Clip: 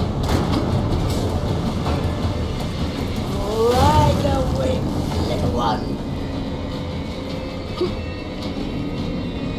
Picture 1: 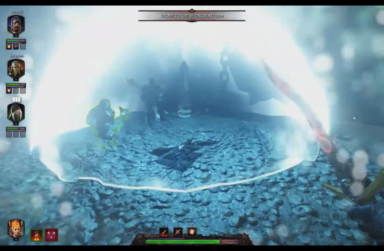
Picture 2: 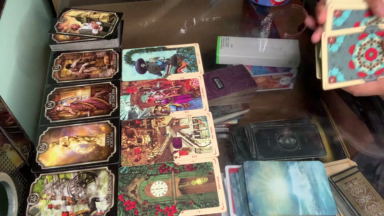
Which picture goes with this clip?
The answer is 1